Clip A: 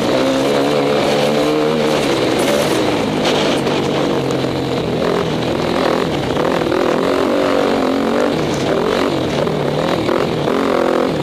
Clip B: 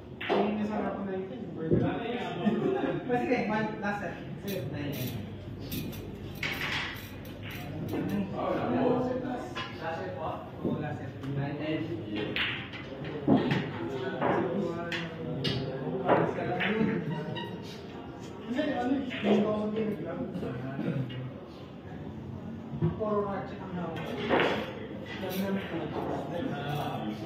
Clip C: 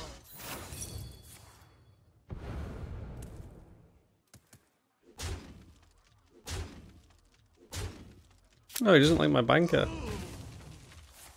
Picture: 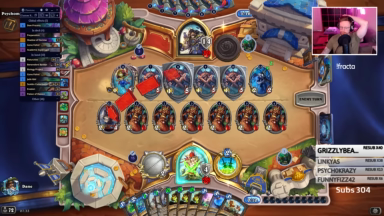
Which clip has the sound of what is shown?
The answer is C